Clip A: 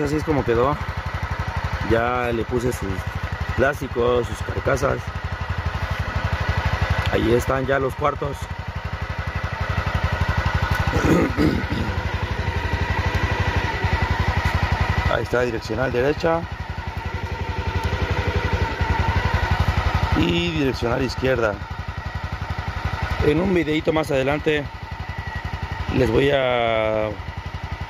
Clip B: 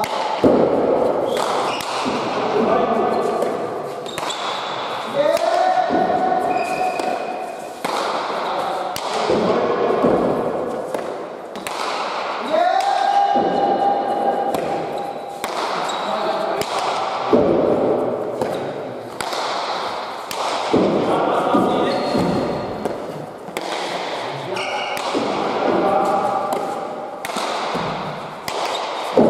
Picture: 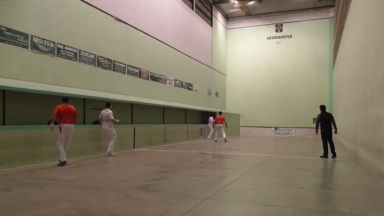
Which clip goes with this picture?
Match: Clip B